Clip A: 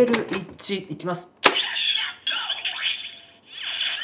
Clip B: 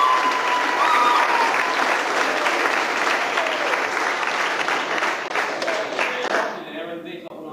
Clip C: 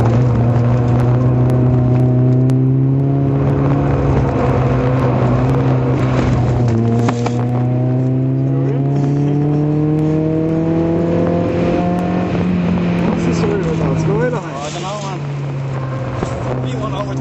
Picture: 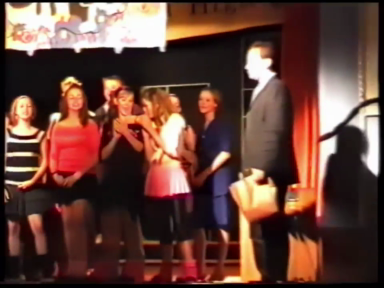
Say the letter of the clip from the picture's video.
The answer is B